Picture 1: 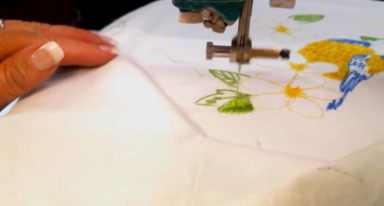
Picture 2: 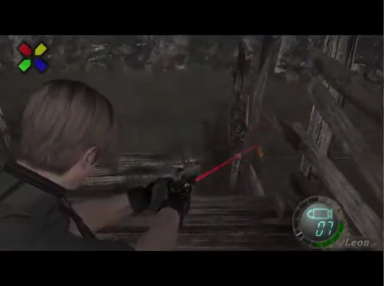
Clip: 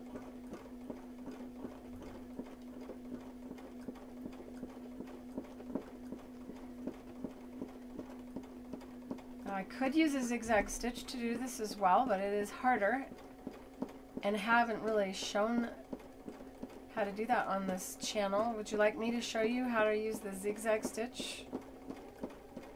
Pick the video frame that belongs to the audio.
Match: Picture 1